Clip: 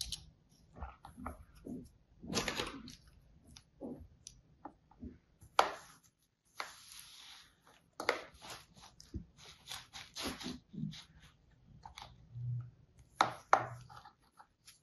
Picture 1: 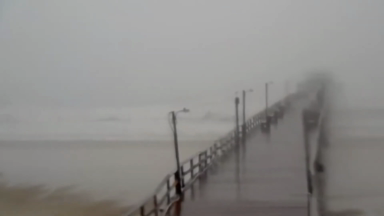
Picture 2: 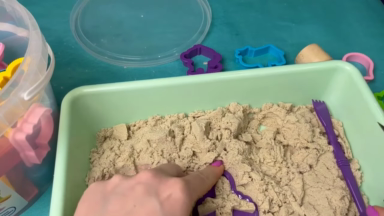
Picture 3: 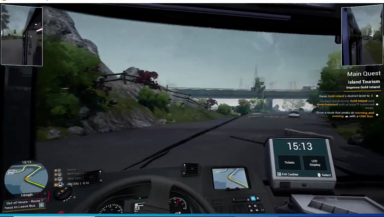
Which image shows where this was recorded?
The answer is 2